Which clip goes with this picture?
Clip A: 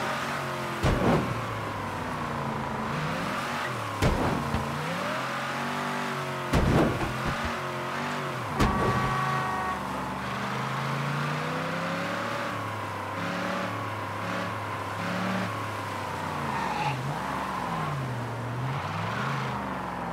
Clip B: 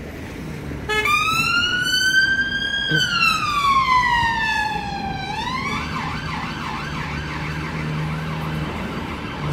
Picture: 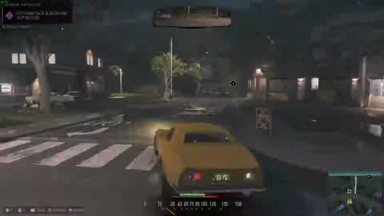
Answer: A